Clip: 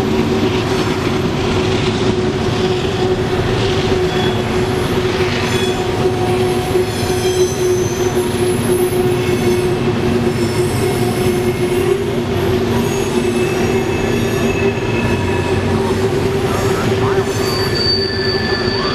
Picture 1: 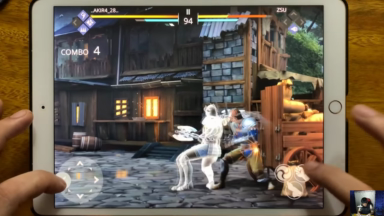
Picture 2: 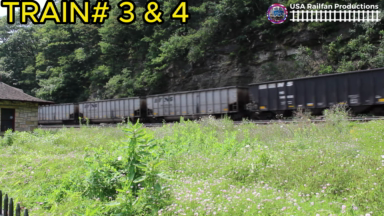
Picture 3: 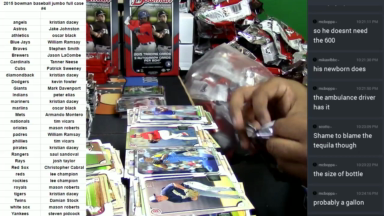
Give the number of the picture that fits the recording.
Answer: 2